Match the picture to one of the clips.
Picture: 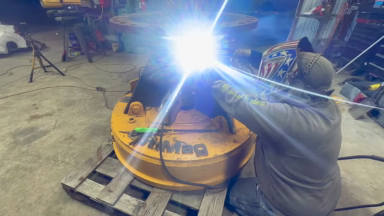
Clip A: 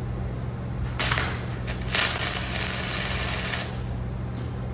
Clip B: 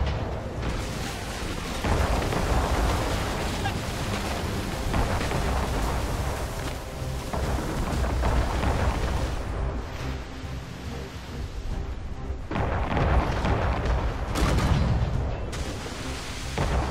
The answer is A